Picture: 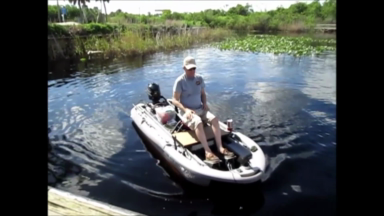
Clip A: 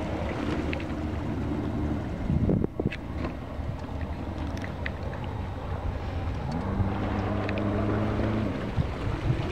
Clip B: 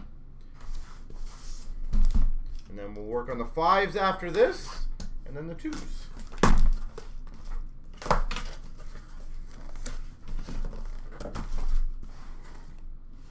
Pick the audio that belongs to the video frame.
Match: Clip A